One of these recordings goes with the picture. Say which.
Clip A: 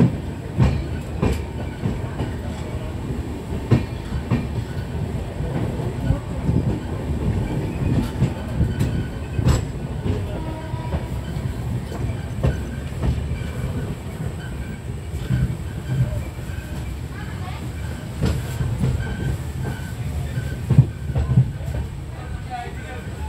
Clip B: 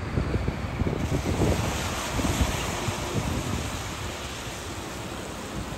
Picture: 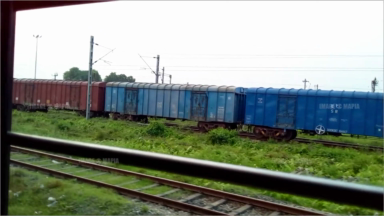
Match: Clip A